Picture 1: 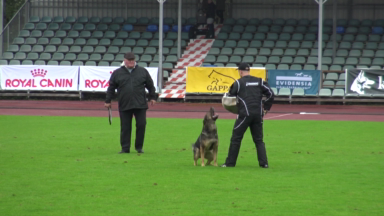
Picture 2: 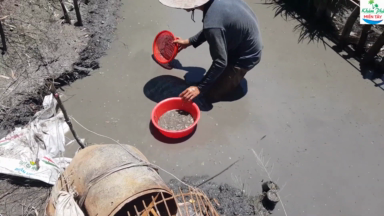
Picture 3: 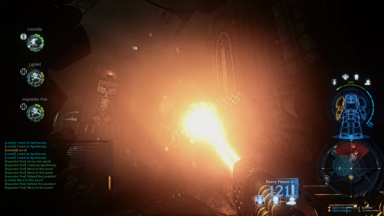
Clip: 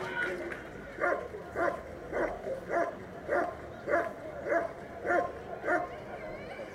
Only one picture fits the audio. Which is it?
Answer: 1